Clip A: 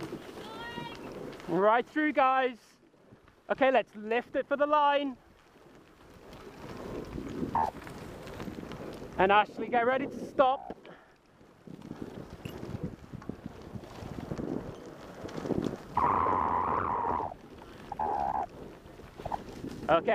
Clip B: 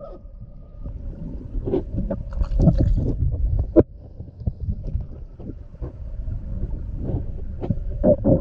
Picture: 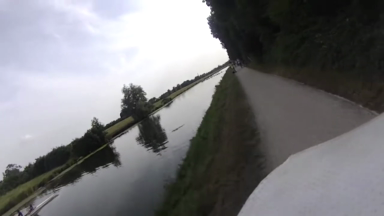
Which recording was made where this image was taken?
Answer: A